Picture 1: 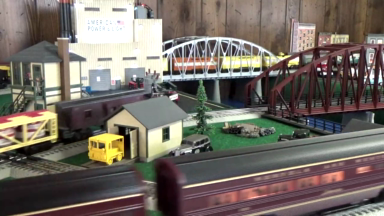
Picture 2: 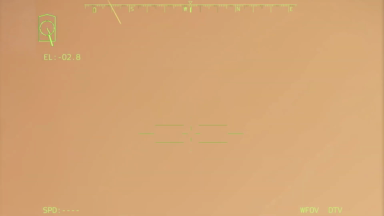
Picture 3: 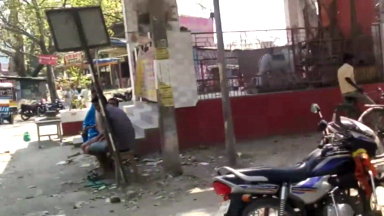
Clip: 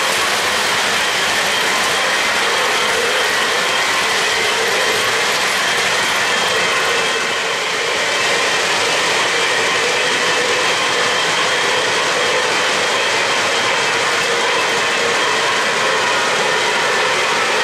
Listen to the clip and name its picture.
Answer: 1